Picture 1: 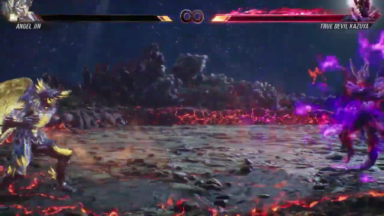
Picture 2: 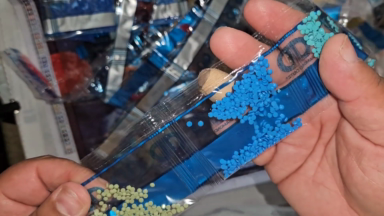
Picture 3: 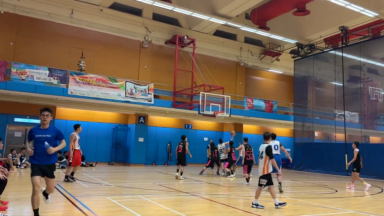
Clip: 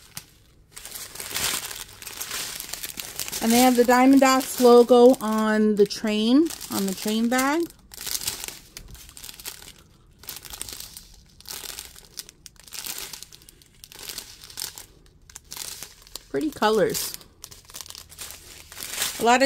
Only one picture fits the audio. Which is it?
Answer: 2